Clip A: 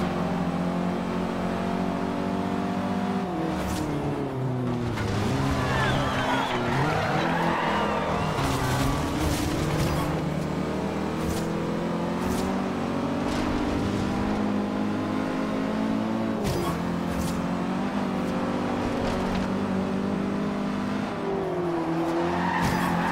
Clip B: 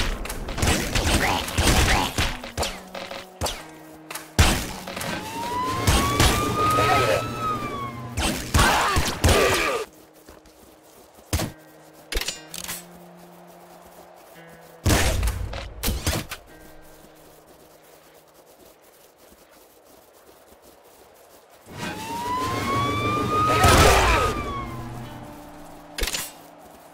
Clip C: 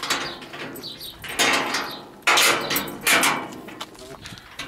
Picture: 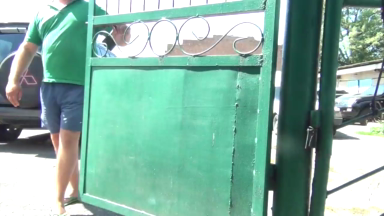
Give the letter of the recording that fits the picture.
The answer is C